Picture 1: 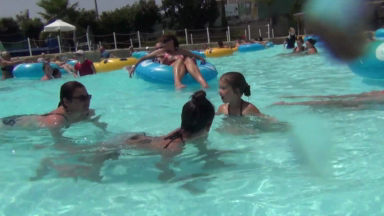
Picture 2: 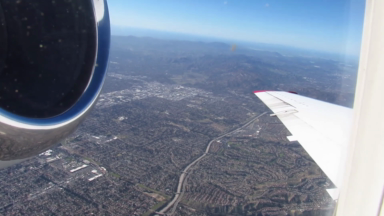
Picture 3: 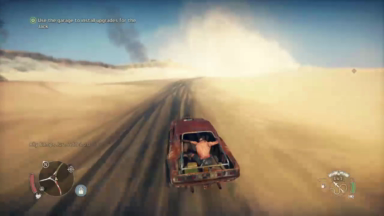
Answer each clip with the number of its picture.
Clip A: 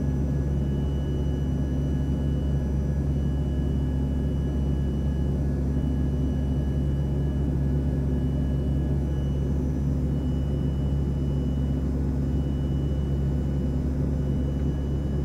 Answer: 2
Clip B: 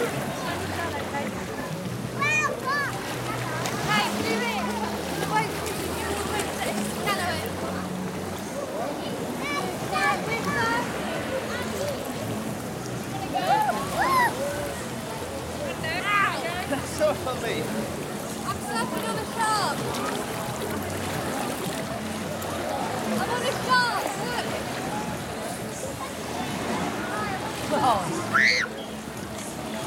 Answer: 1